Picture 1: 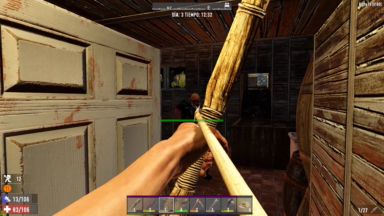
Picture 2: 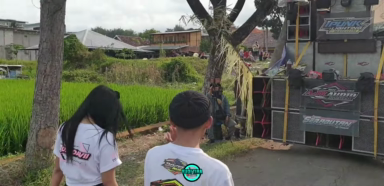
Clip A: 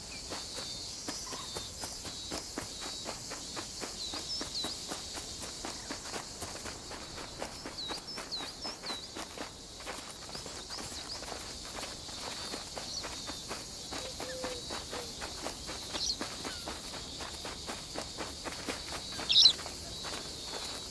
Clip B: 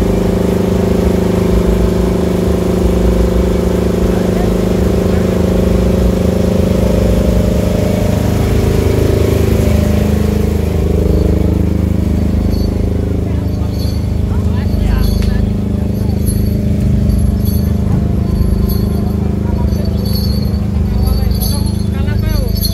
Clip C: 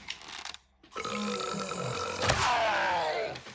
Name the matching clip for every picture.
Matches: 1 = C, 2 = B